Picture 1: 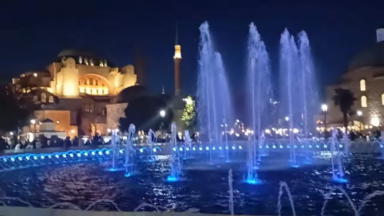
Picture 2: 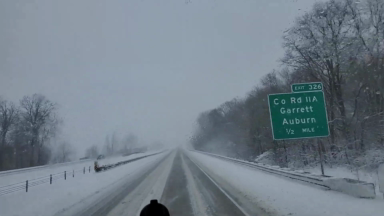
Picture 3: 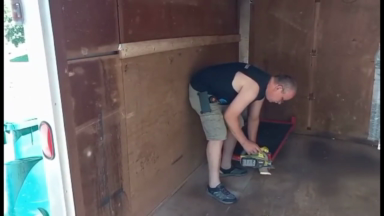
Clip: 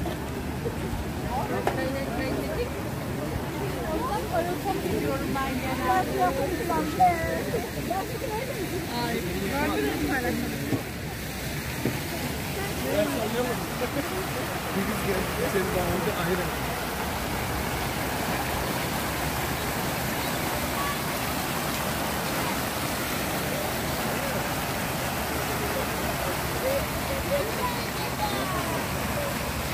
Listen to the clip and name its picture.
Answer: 1